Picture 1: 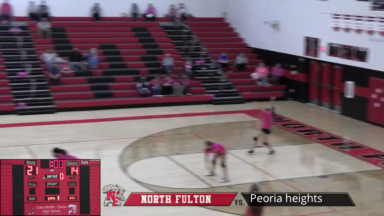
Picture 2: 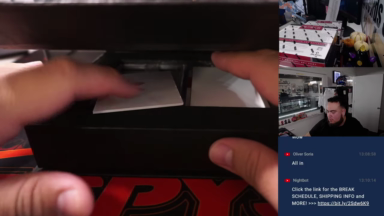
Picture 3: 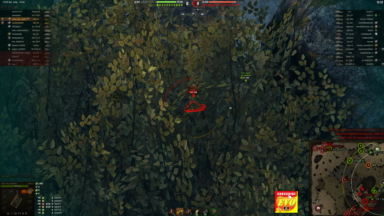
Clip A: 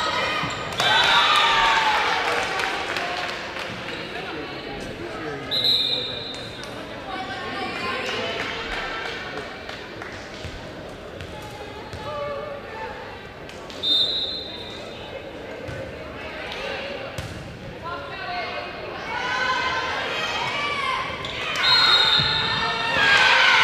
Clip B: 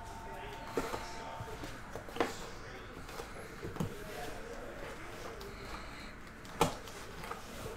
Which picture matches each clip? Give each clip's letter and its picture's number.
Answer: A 1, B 2